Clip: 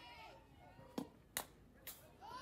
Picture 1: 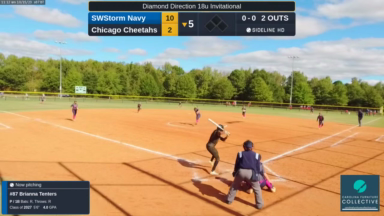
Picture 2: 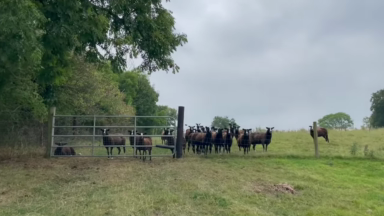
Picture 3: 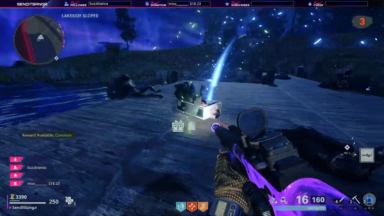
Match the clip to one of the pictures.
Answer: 1